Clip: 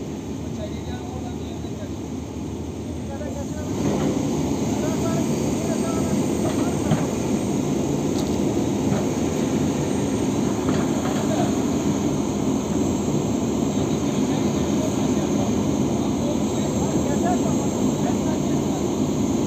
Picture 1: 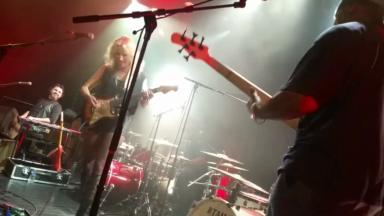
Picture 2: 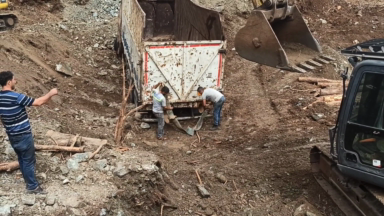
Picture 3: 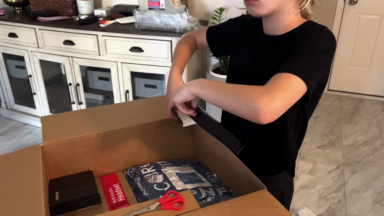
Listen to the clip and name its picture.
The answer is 2